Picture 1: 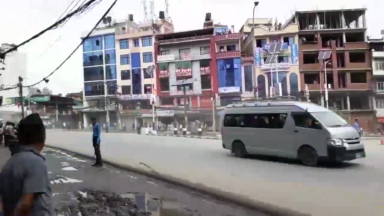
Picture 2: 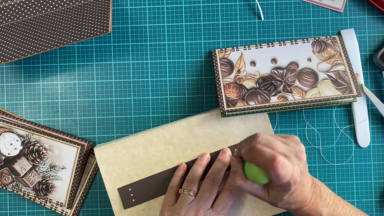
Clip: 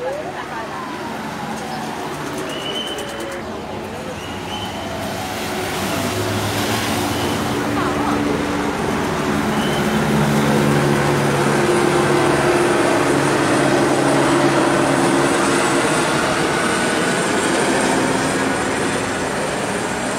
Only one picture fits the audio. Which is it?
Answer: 1